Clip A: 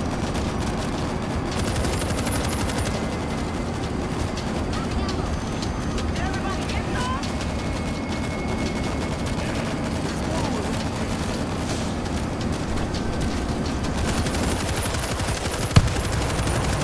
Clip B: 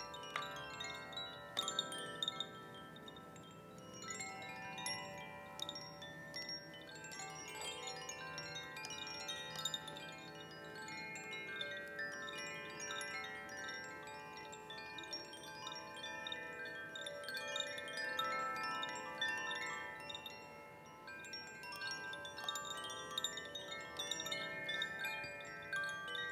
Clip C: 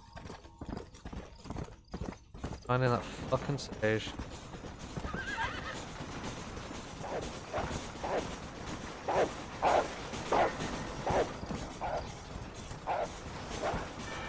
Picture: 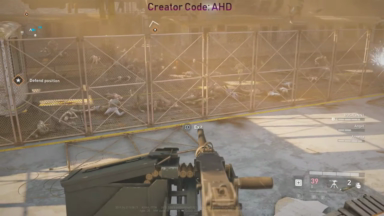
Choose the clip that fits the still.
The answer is A